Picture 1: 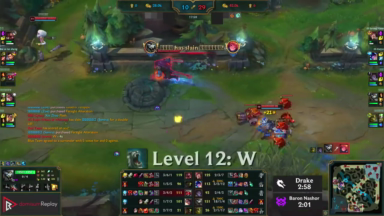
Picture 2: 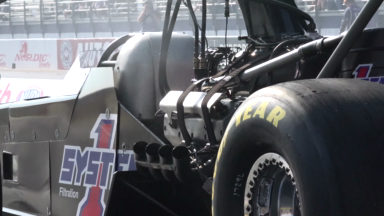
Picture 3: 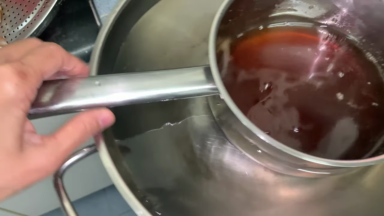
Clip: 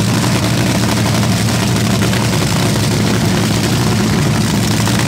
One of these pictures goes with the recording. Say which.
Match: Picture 2